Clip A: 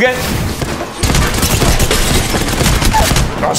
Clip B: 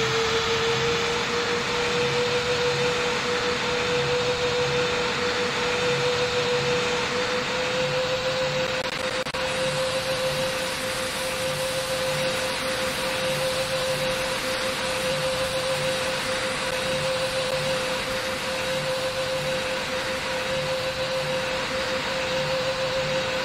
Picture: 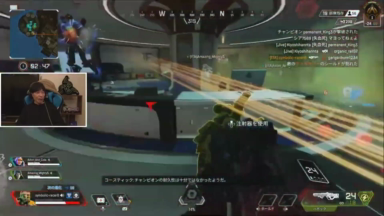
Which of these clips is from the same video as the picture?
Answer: A